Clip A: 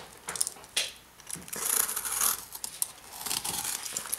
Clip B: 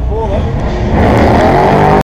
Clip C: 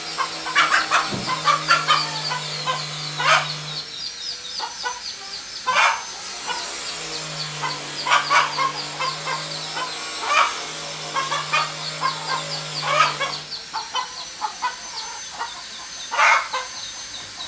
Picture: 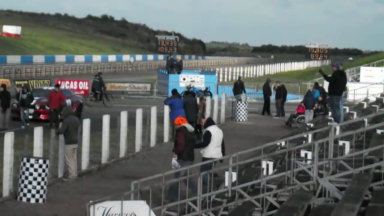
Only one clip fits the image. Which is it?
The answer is B